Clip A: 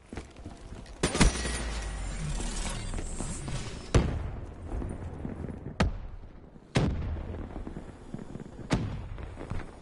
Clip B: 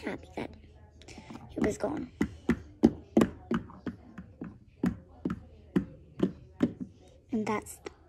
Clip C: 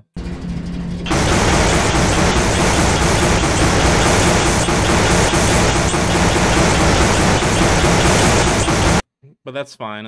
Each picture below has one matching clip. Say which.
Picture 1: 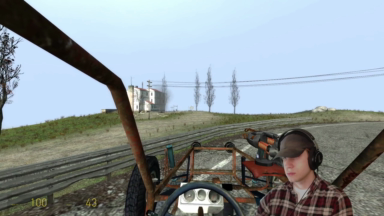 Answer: C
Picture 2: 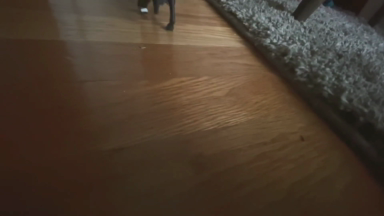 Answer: B